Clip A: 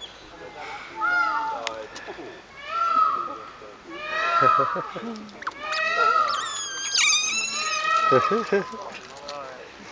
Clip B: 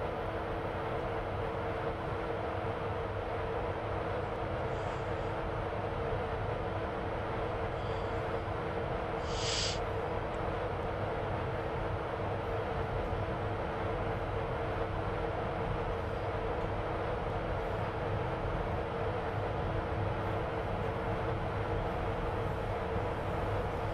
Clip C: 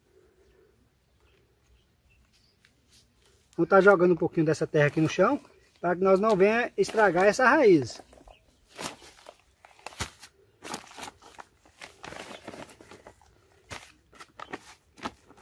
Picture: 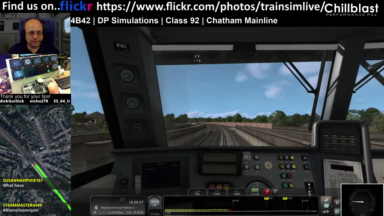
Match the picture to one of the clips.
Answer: B